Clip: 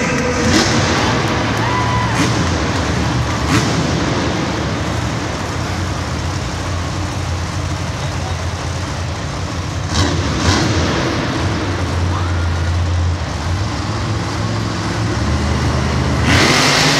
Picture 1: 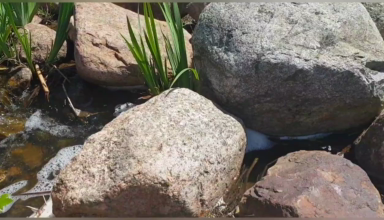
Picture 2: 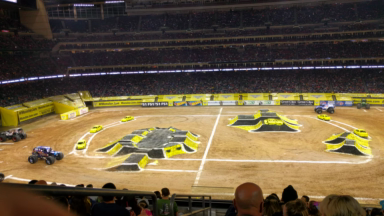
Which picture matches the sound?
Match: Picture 2